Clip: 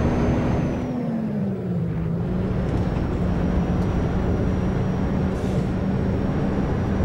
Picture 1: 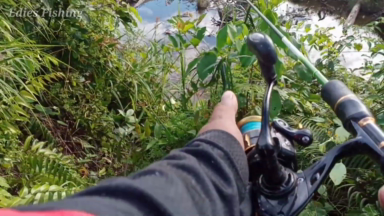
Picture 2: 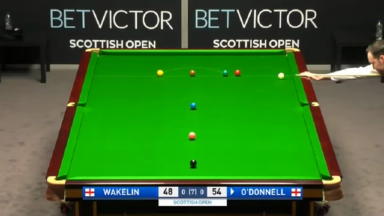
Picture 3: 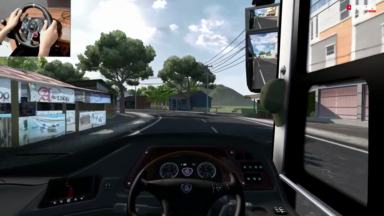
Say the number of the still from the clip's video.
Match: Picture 3